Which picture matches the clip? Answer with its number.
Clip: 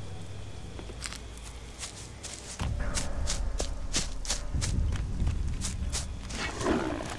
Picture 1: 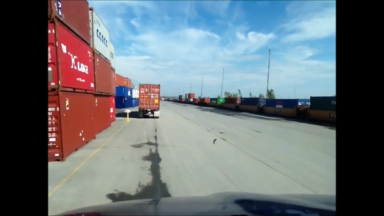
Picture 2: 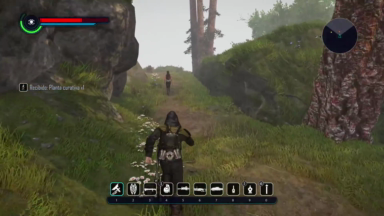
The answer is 2